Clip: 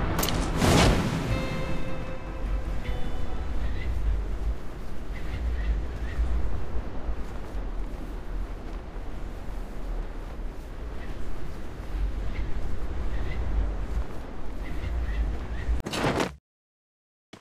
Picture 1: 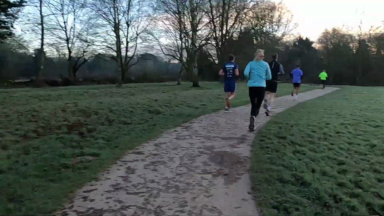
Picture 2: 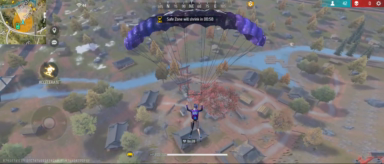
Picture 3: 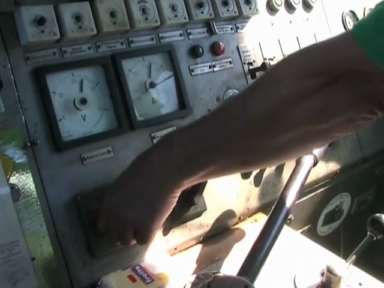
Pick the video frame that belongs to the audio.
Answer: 2